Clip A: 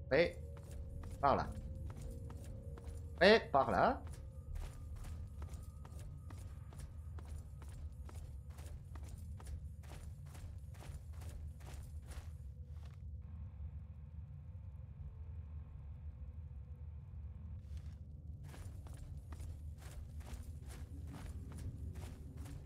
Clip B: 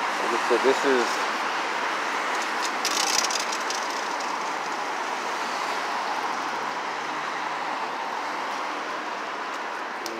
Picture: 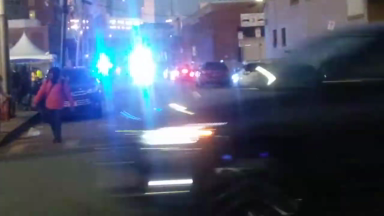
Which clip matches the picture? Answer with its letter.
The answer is B